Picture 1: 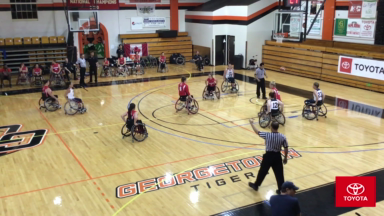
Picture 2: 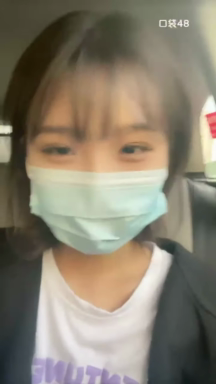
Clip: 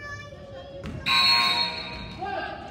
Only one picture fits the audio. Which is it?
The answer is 1